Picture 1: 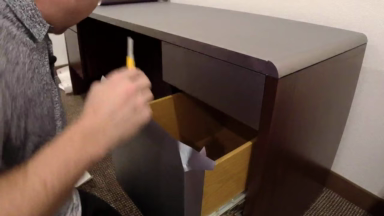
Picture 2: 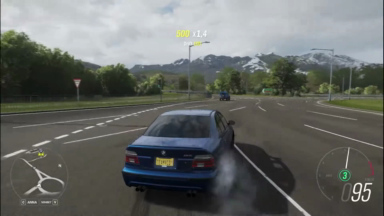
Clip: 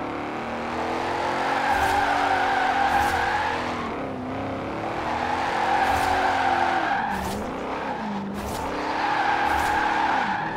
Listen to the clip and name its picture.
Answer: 2